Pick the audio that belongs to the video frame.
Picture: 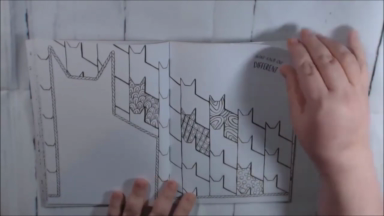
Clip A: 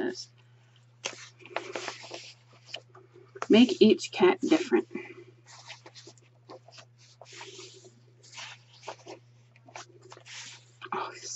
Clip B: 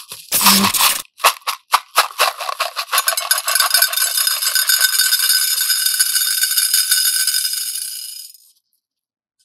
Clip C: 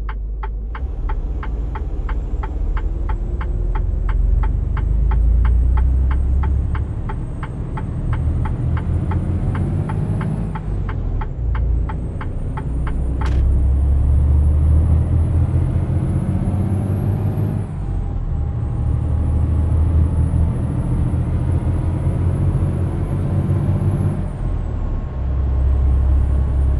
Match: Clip A